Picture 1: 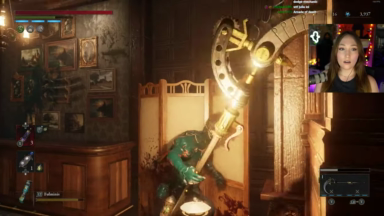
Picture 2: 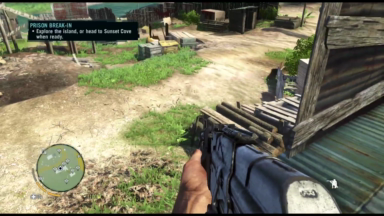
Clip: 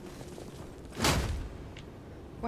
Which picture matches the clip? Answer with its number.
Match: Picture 1